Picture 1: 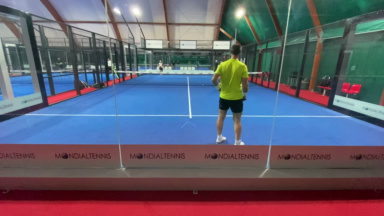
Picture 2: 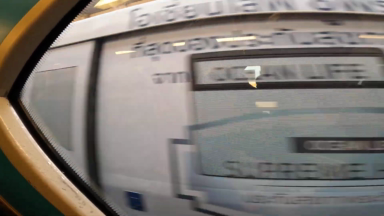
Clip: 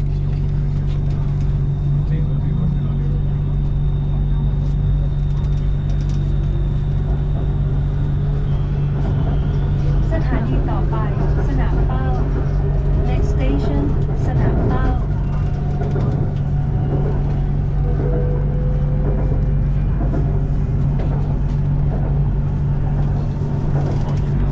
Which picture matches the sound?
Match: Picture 2